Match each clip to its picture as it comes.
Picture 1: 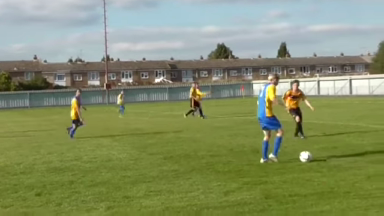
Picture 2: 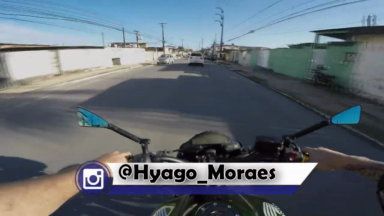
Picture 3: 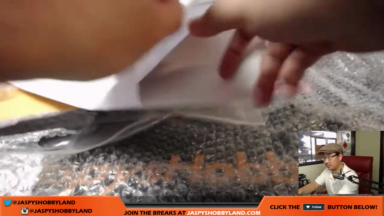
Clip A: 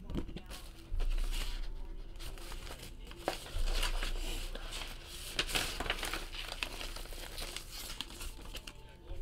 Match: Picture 3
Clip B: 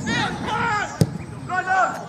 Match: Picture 1